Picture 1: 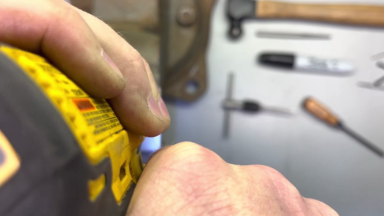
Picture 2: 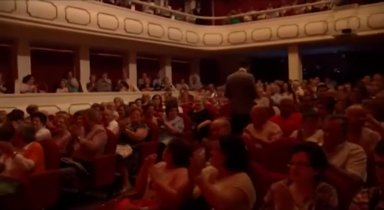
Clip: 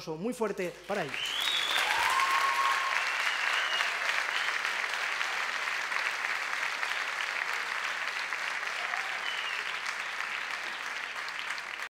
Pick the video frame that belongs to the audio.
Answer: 2